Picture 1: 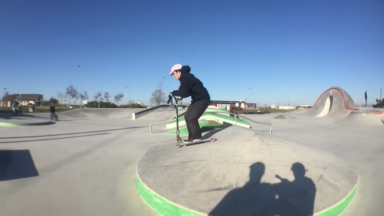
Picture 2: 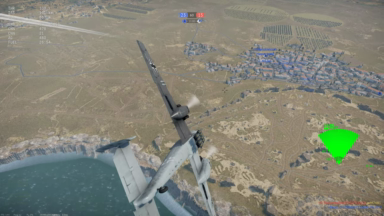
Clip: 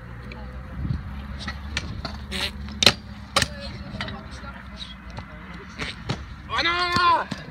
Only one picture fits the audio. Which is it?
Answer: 1